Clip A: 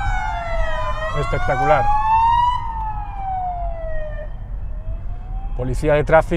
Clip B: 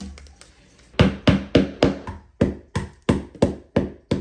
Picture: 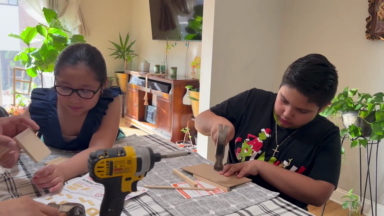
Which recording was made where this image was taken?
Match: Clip B